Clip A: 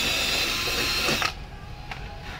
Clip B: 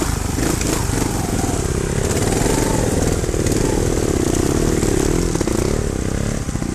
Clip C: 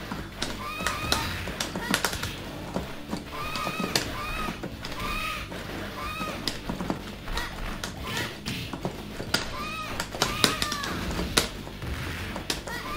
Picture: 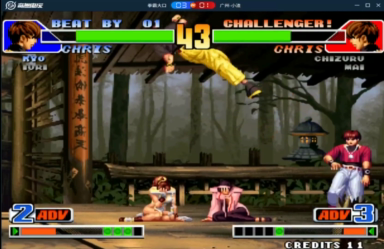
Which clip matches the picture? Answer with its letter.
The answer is C